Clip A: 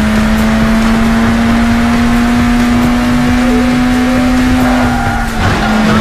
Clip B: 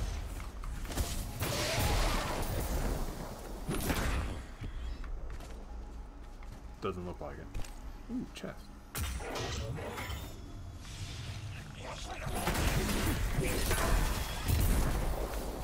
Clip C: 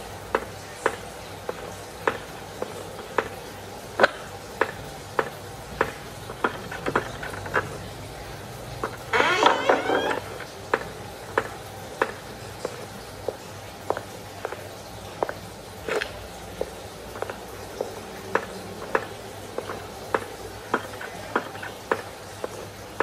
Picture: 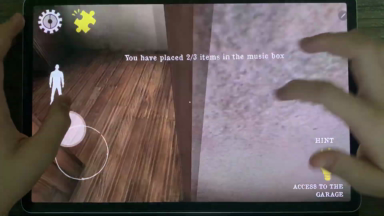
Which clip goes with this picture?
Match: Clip C